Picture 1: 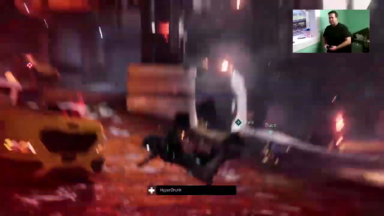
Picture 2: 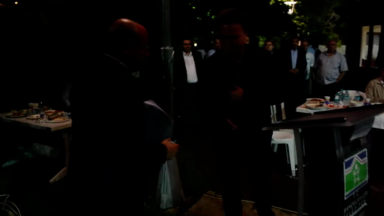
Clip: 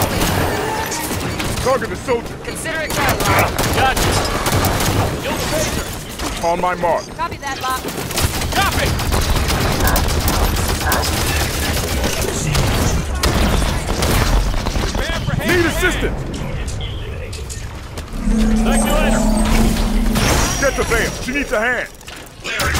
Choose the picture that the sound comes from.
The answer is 1